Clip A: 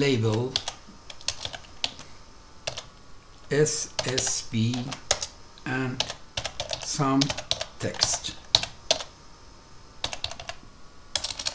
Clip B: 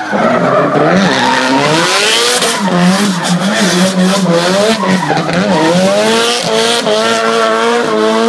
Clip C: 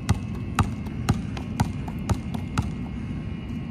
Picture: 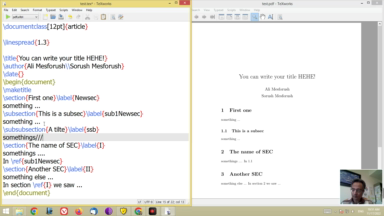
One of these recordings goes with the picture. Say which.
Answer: A